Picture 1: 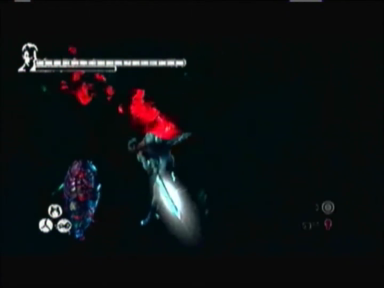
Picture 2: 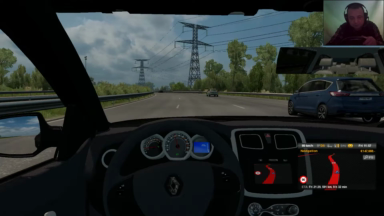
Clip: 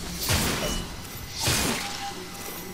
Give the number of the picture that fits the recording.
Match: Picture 1